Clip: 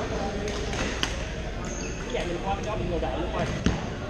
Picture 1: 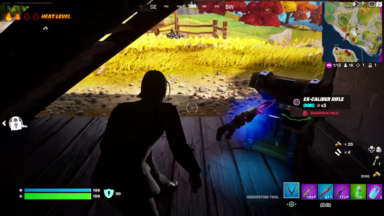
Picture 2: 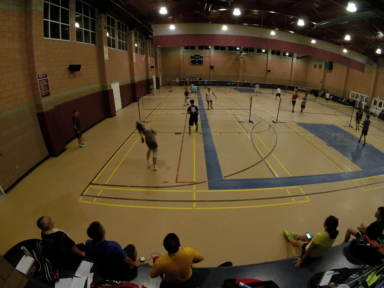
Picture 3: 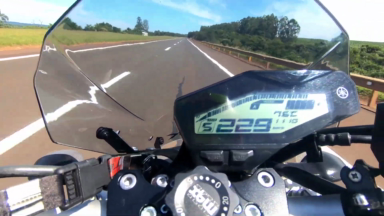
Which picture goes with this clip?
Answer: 2